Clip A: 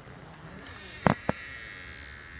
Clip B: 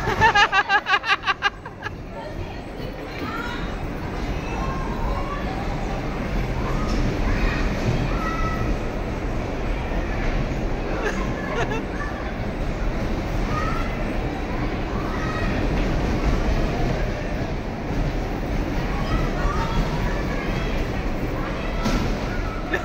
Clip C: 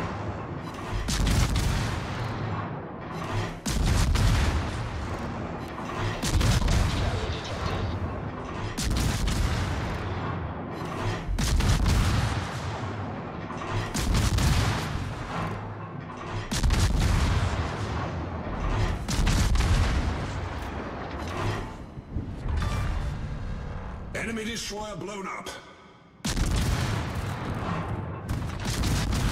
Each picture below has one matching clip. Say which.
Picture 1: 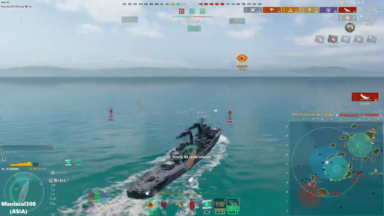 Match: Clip C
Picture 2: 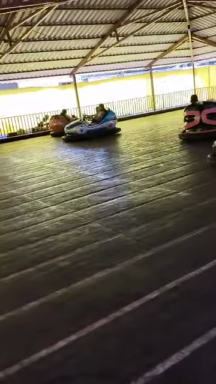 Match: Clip B